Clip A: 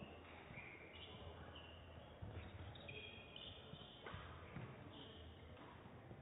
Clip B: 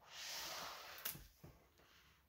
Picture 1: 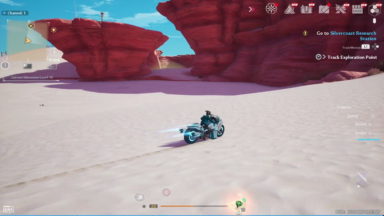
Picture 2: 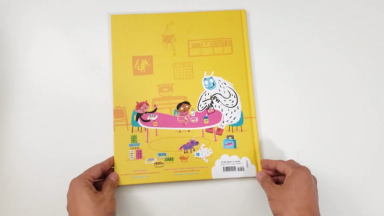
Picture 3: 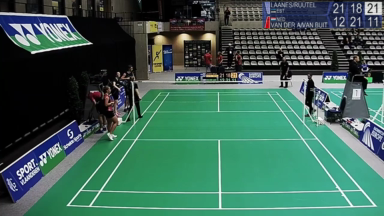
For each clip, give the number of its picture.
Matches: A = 3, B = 2